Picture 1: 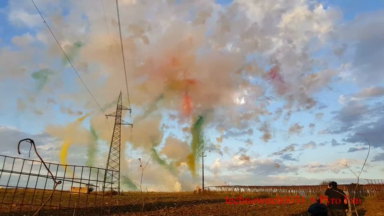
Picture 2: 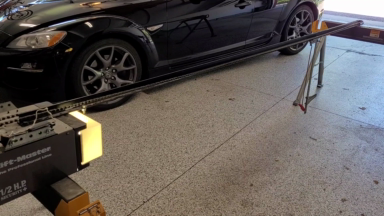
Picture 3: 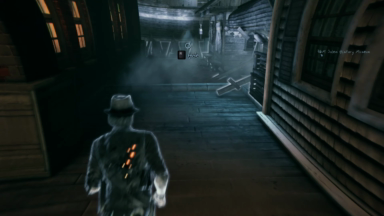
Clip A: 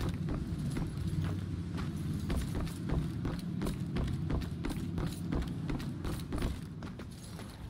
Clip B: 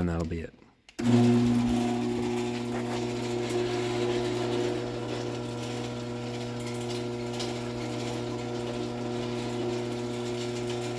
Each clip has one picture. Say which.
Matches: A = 3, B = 2